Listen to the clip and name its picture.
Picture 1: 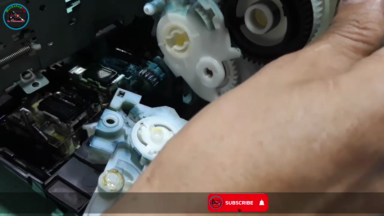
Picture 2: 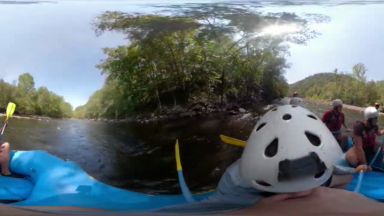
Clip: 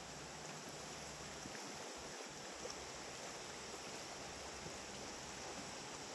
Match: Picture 2